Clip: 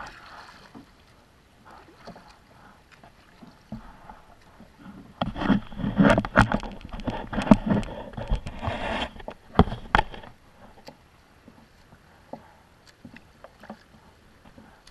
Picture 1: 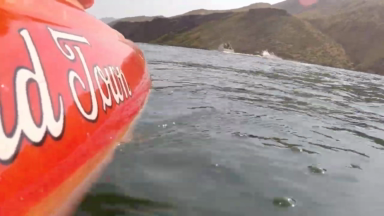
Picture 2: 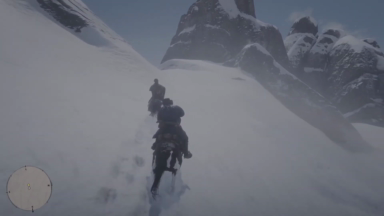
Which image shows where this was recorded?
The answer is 1